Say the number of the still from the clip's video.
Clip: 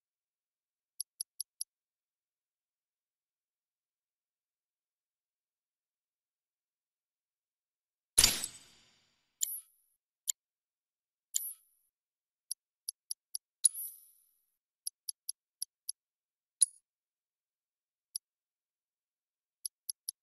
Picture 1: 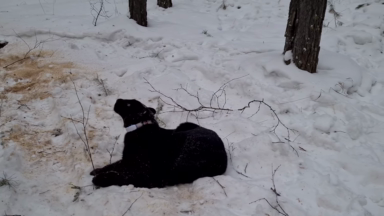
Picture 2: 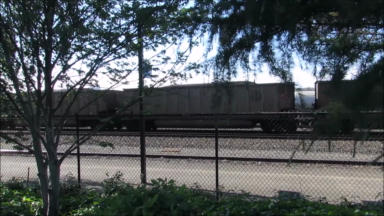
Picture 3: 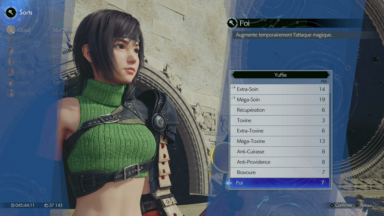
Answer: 3